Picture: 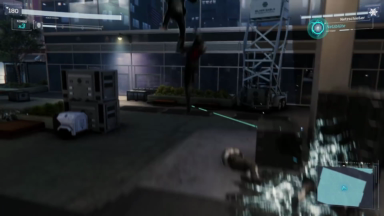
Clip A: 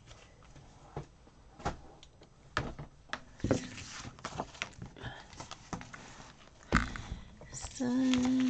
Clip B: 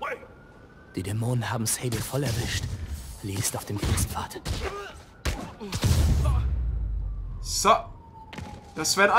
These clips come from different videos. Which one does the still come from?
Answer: B